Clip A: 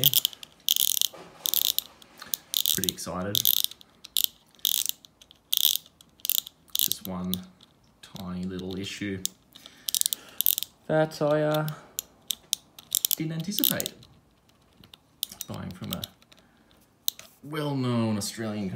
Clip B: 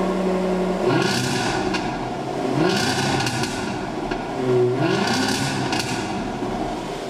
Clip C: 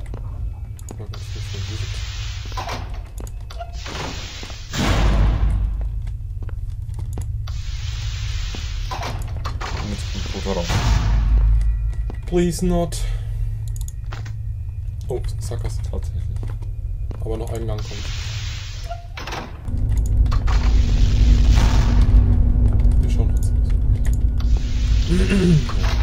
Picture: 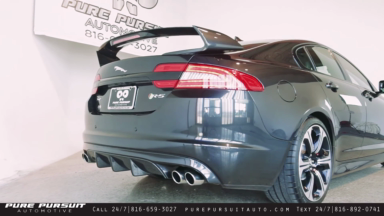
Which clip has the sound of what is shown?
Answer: B